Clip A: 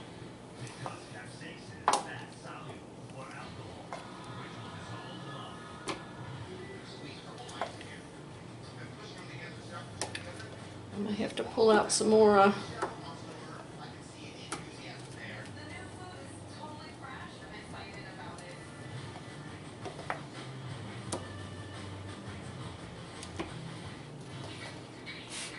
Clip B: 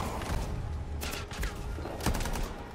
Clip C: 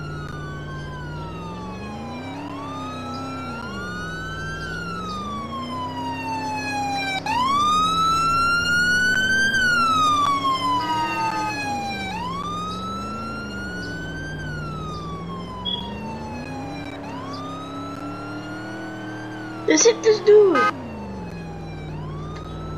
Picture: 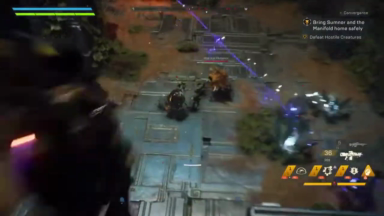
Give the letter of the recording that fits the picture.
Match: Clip B